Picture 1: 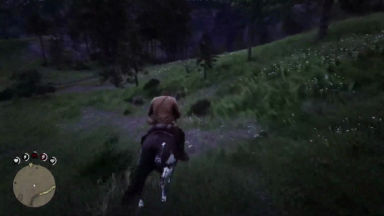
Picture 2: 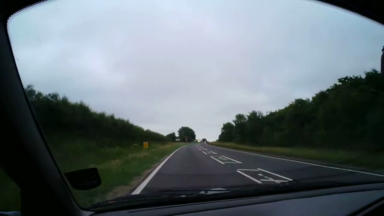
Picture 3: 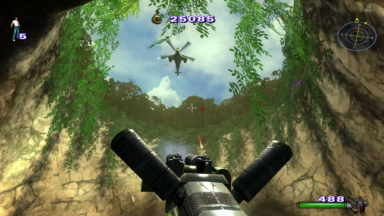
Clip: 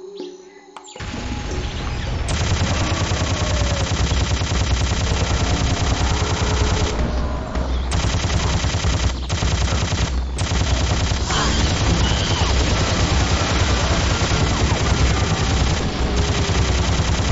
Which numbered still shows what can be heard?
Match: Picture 3